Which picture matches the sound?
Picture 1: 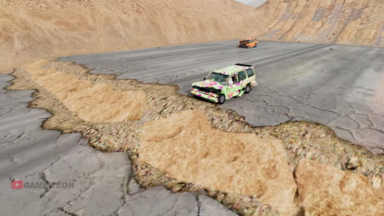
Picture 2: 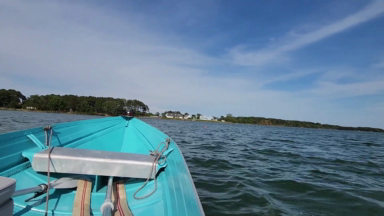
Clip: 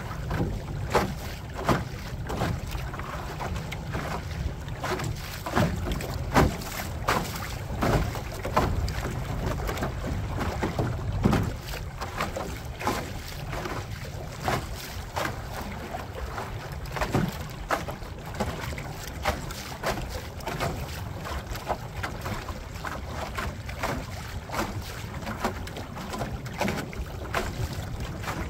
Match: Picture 2